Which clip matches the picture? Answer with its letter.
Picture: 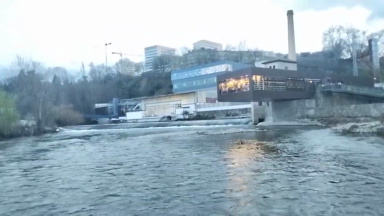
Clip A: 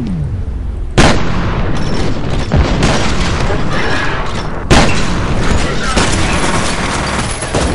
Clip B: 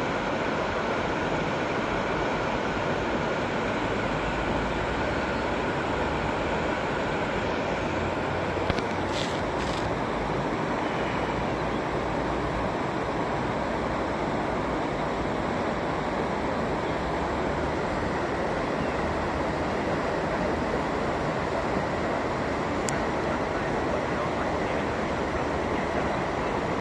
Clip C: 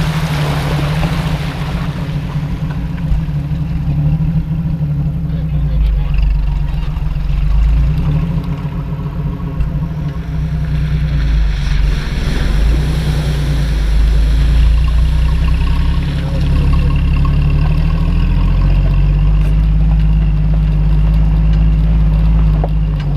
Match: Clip B